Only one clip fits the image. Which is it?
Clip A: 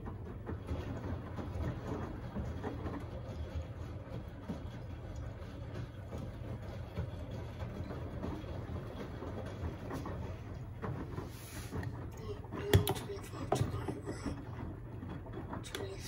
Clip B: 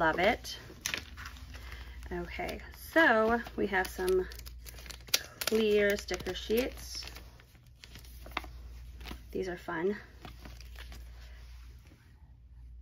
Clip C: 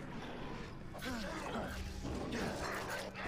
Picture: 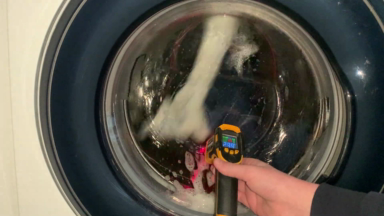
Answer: A